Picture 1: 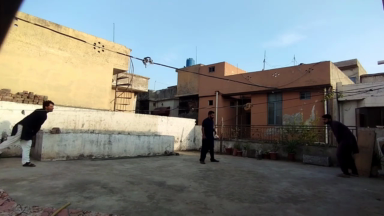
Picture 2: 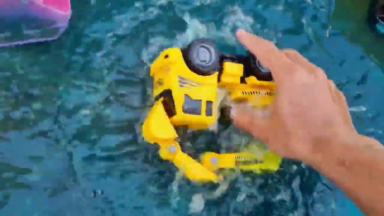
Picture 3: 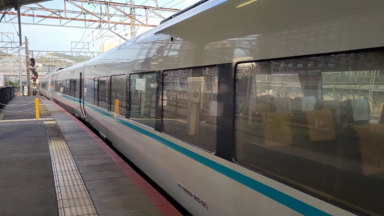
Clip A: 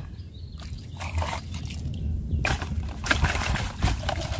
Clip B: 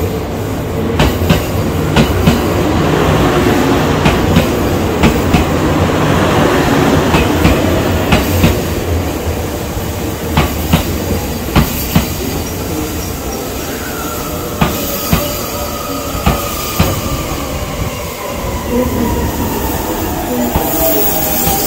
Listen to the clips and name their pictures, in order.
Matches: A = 2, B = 3